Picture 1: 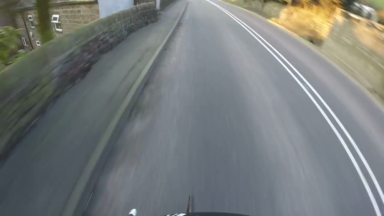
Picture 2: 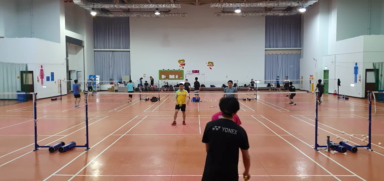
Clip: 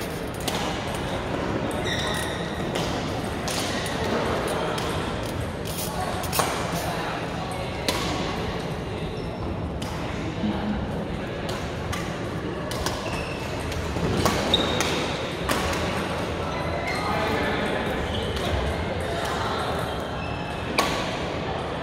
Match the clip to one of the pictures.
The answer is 2